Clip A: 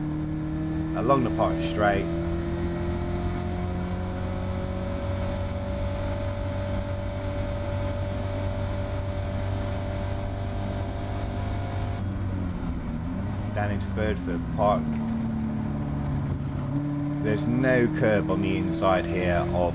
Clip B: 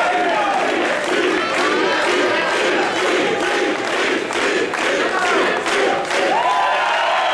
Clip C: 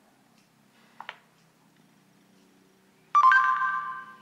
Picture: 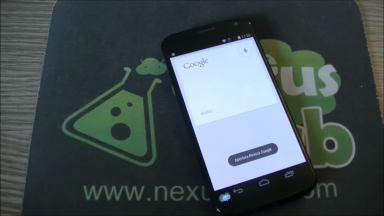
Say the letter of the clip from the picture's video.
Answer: C